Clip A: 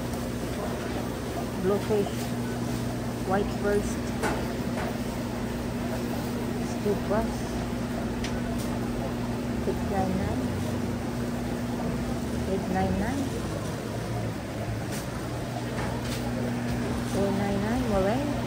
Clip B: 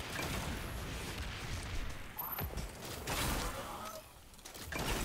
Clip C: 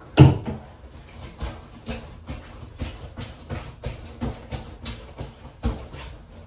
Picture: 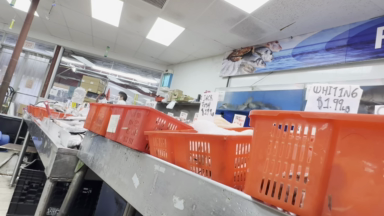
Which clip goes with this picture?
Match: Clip A